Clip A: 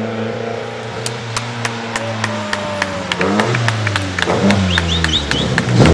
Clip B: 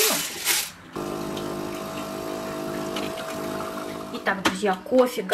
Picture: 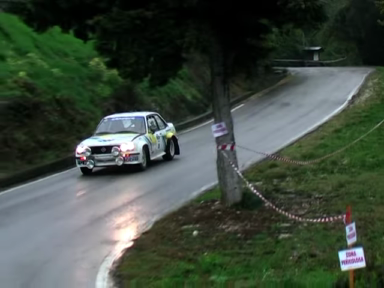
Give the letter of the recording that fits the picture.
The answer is A